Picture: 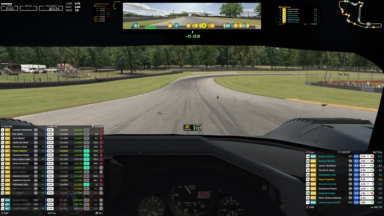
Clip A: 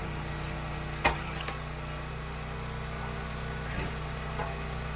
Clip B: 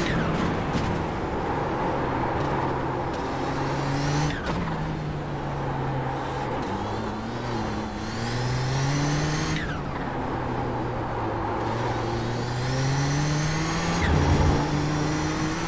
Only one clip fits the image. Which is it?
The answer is B